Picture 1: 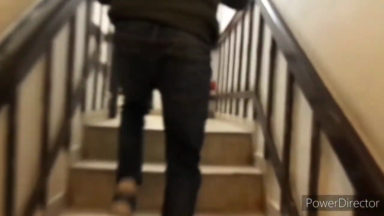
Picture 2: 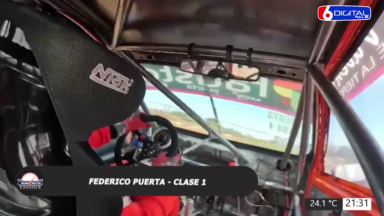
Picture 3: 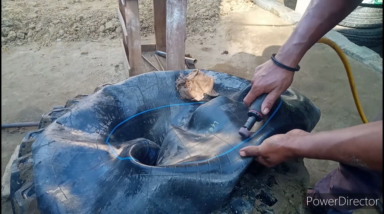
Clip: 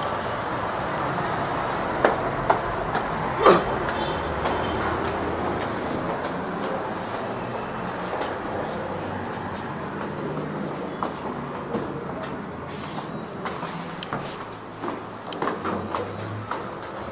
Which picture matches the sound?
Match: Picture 1